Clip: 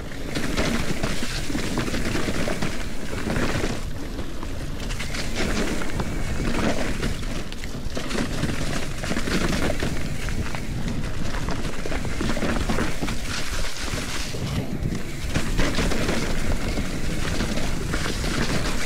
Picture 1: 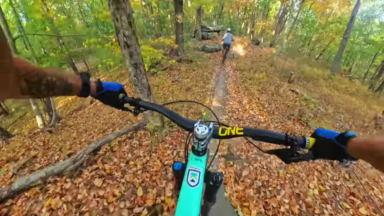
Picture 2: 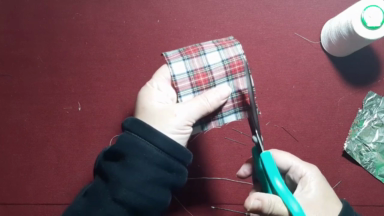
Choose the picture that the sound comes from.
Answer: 1